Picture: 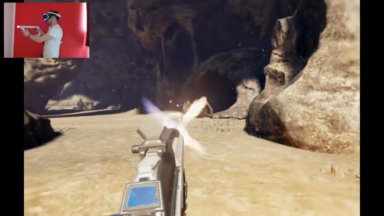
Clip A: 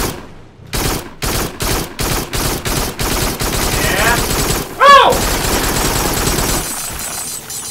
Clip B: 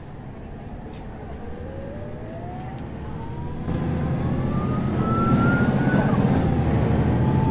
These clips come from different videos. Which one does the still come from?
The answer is A